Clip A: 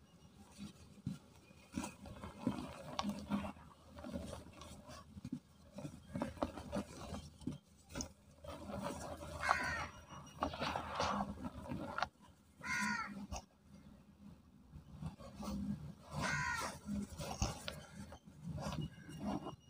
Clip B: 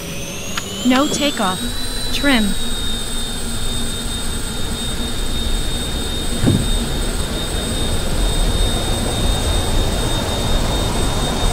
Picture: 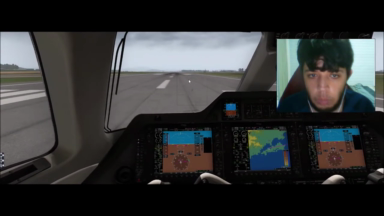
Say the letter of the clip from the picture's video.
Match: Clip B